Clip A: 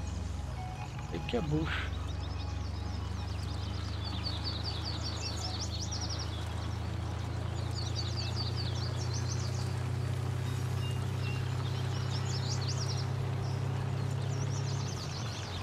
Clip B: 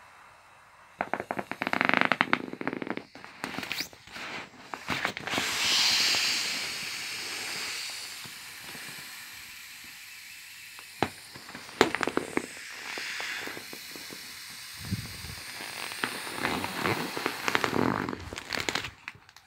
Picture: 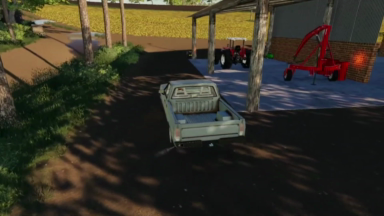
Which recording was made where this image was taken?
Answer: A